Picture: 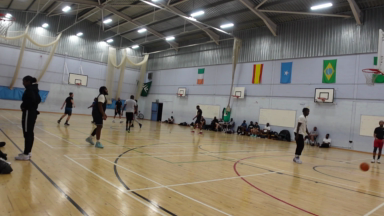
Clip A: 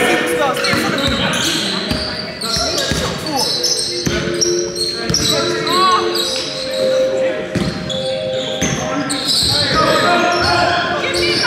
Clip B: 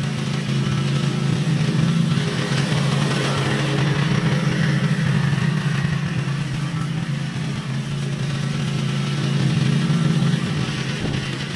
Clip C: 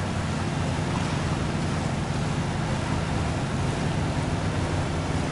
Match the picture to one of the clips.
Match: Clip A